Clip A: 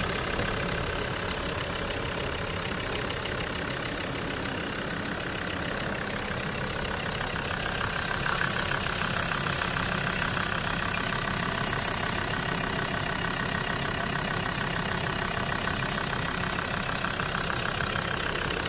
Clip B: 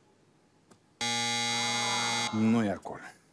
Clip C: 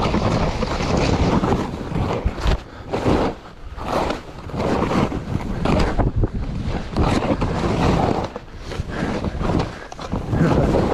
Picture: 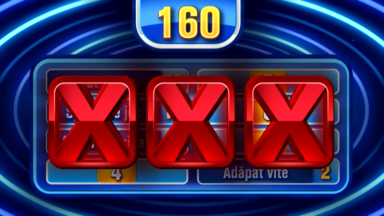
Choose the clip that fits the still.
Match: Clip B